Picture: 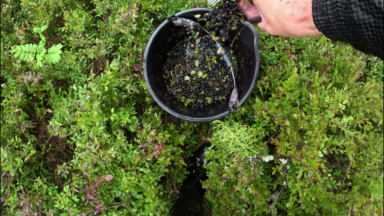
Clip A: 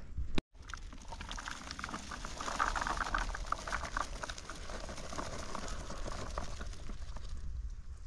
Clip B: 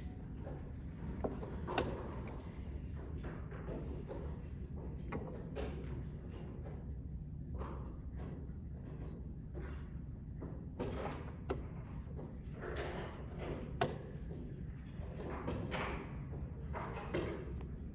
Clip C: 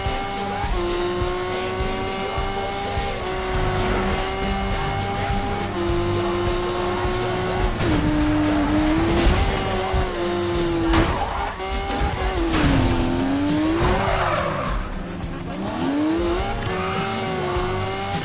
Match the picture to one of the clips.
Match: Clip A